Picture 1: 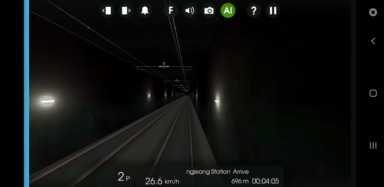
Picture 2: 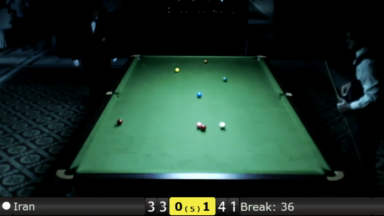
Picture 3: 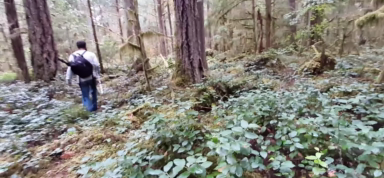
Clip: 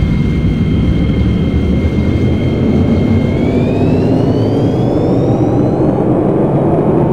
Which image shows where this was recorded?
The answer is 1